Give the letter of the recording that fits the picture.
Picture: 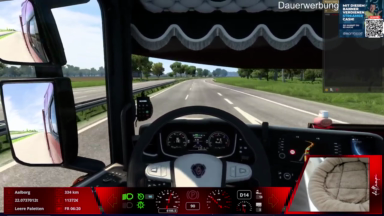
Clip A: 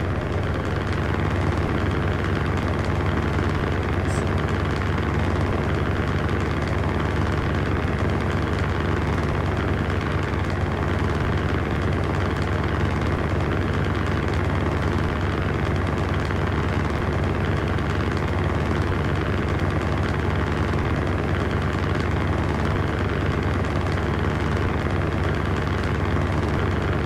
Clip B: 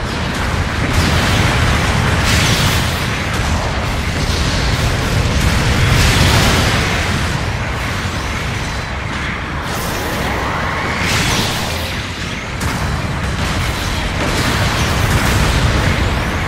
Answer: A